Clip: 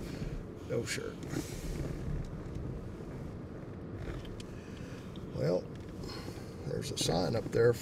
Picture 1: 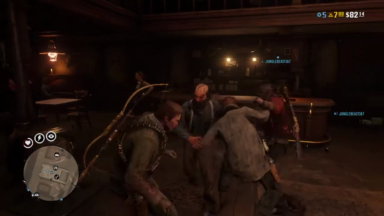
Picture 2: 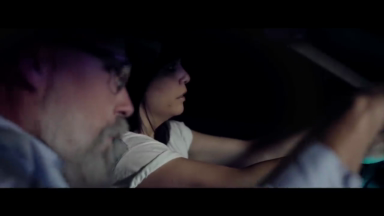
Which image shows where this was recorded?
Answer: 2